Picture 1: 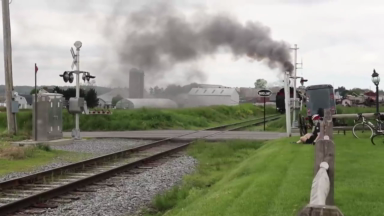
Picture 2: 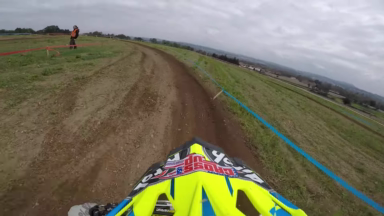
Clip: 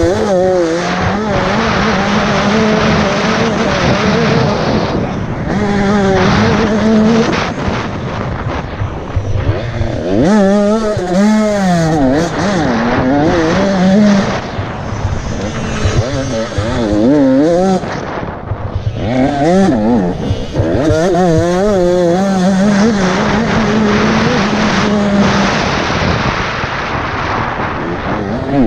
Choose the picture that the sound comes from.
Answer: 2